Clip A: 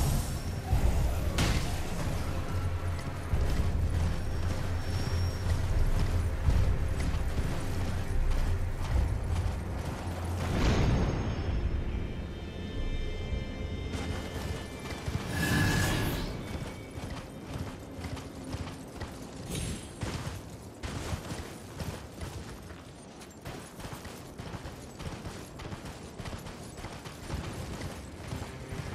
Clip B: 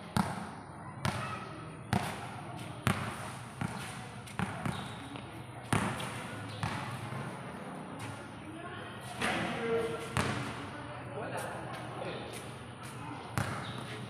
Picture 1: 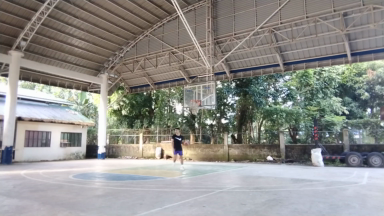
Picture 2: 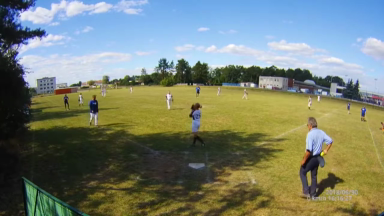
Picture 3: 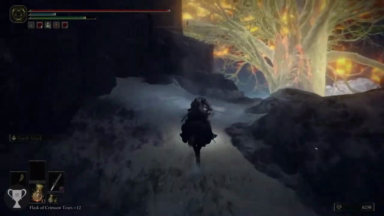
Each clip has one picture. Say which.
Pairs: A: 3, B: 1